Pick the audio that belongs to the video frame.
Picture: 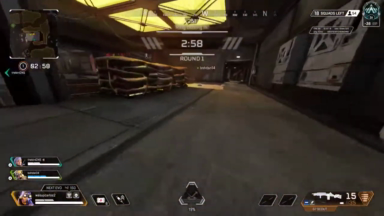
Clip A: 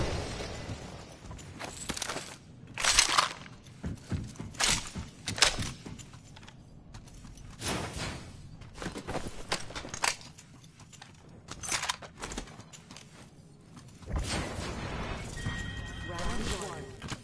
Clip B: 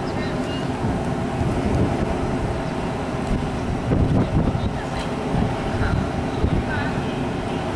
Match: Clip A